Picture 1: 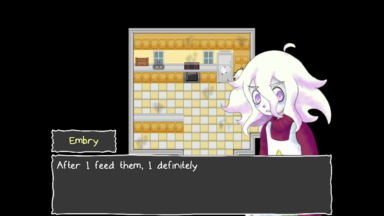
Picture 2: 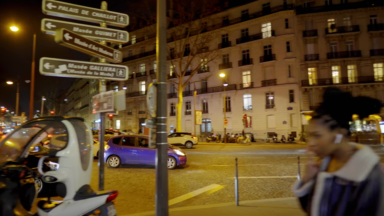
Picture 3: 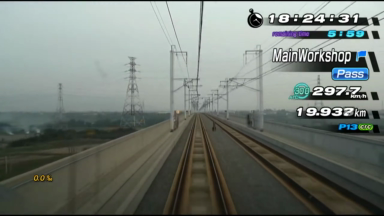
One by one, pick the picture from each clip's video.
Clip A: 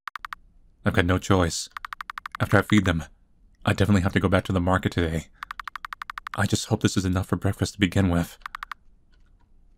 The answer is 1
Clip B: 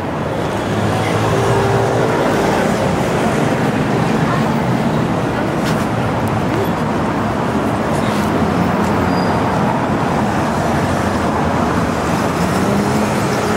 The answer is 2